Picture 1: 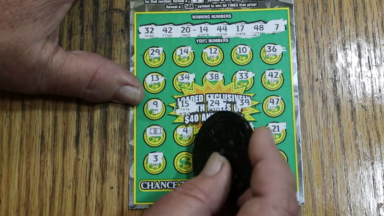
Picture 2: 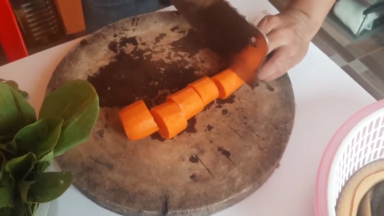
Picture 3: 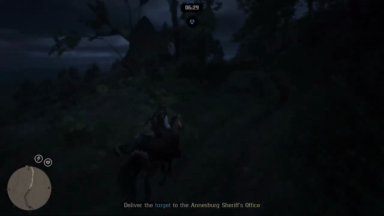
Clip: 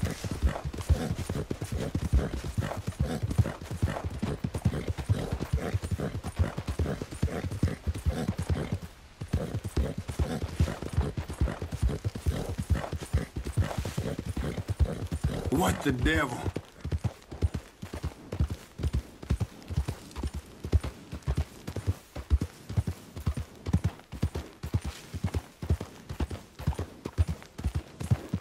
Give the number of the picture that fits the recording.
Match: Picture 3